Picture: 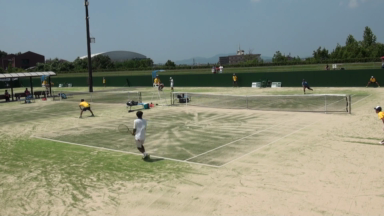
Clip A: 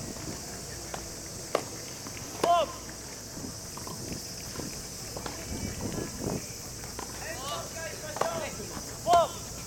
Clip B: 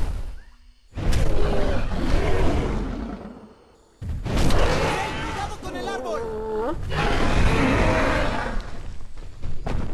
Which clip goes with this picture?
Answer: A